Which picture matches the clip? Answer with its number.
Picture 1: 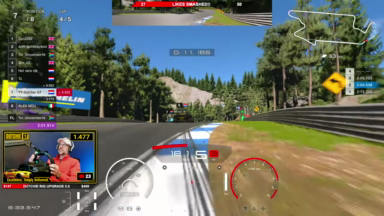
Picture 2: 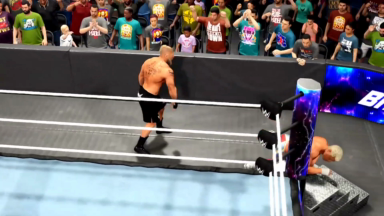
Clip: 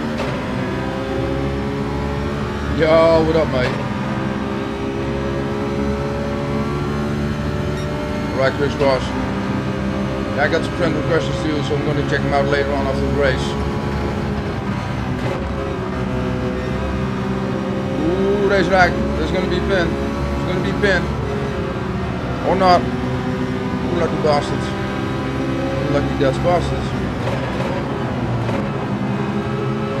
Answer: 1